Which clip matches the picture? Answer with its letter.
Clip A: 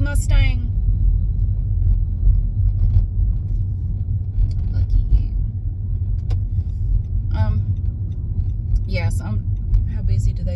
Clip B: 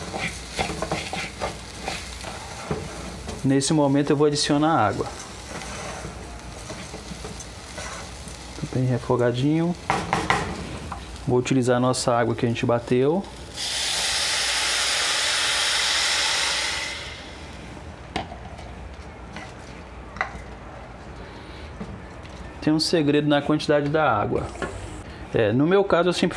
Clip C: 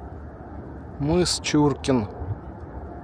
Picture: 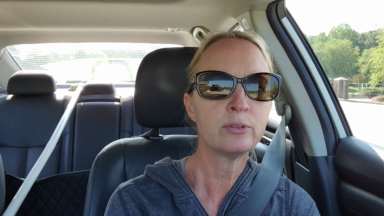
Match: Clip A